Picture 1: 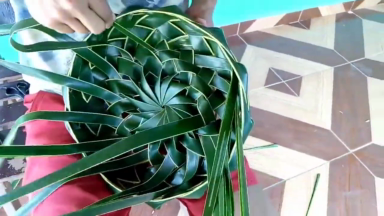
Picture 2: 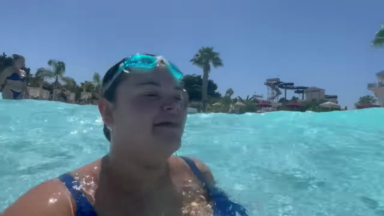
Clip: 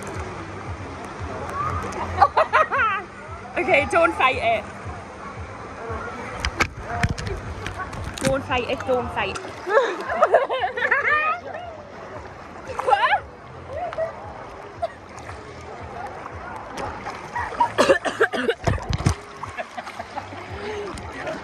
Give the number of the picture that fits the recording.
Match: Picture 2